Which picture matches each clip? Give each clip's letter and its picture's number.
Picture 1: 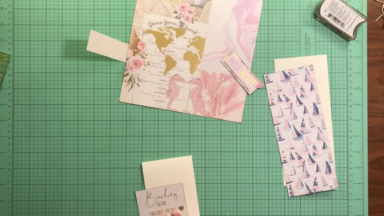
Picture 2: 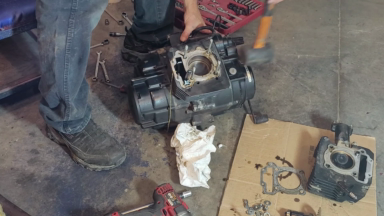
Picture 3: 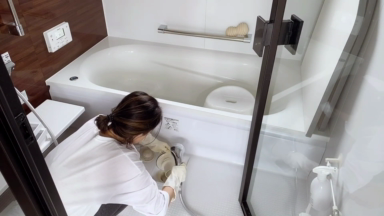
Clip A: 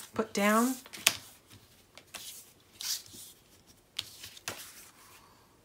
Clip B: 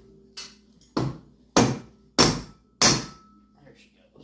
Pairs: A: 1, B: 2